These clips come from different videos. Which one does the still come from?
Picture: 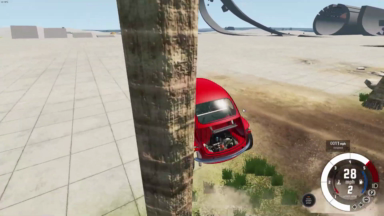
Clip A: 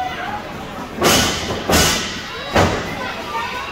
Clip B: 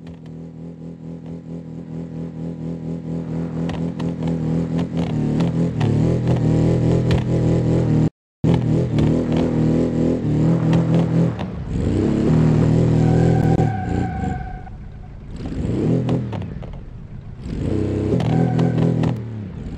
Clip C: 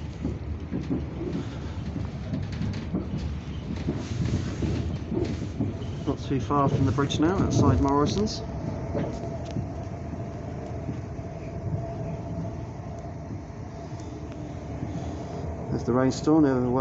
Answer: B